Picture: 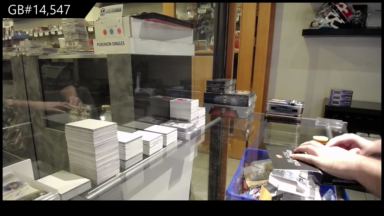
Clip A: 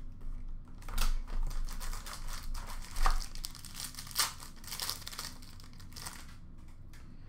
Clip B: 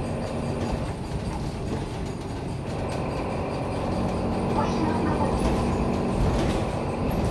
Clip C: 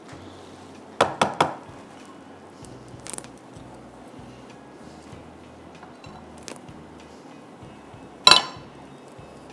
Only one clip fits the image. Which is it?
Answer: A